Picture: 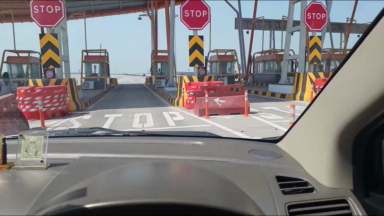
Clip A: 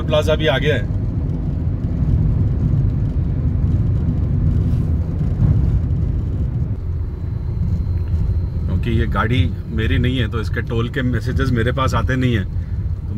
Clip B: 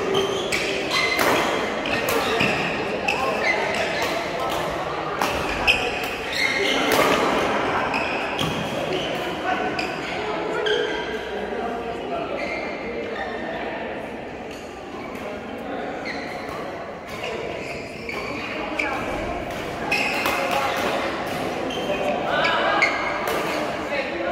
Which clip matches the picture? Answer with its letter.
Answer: A